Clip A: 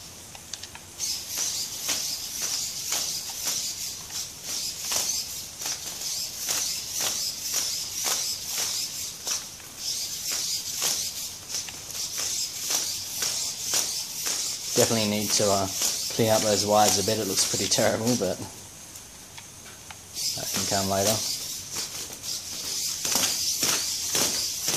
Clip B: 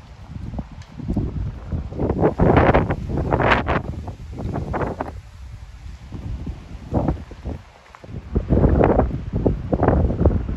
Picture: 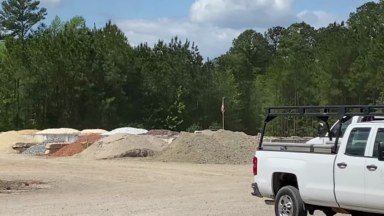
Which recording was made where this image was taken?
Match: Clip B